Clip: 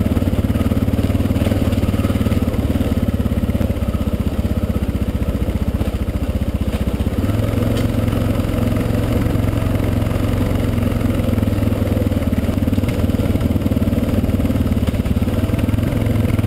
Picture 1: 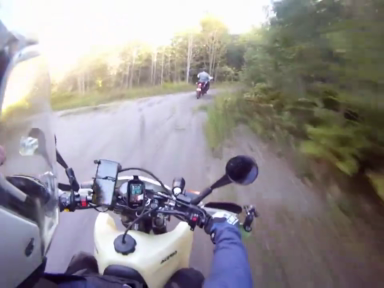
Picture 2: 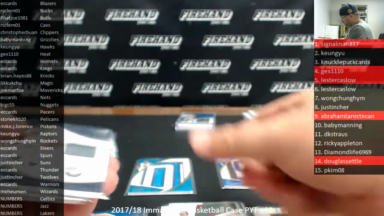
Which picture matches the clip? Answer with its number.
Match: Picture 1